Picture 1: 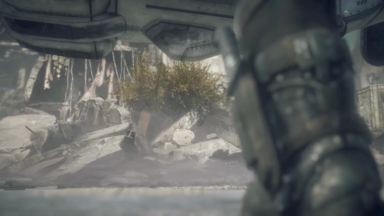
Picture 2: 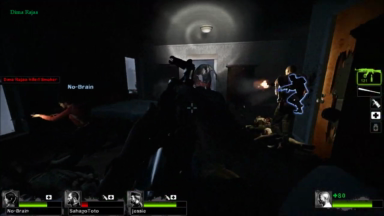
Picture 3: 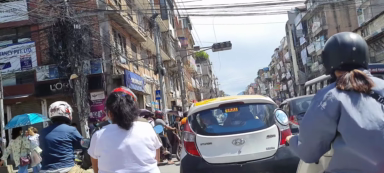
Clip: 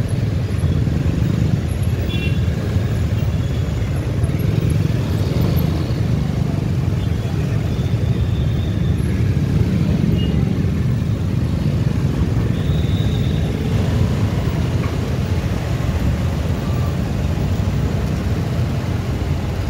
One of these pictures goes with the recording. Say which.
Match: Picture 3